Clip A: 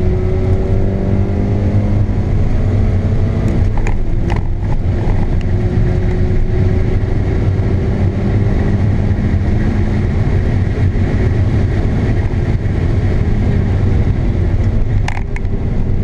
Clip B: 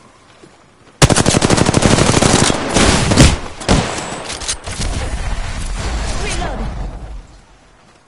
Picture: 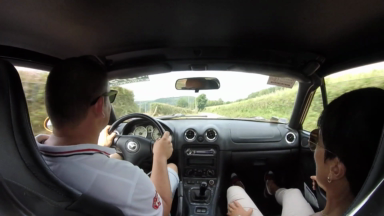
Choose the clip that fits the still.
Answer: A